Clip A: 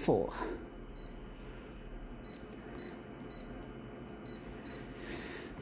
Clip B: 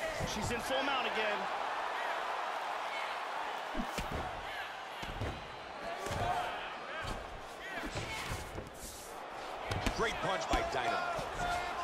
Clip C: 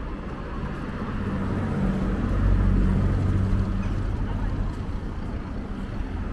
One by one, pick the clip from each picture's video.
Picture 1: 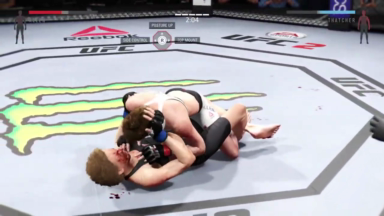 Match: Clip B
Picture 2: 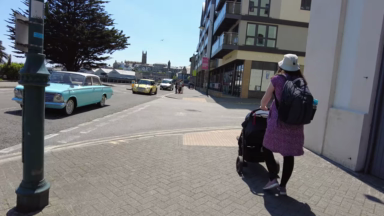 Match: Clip C